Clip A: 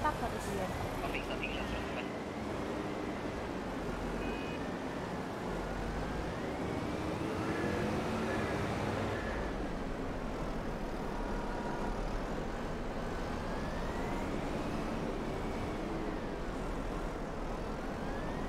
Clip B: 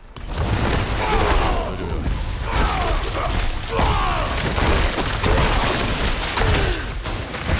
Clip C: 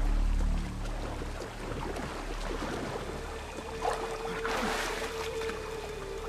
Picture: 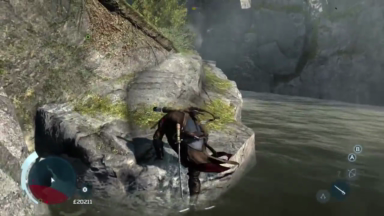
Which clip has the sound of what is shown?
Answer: C